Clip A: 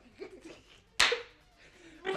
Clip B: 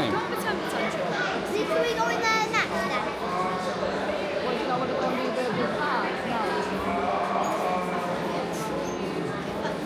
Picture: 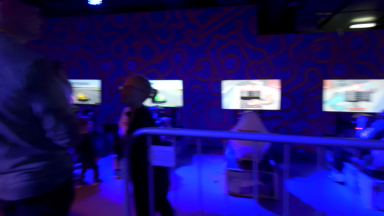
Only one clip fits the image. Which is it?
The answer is B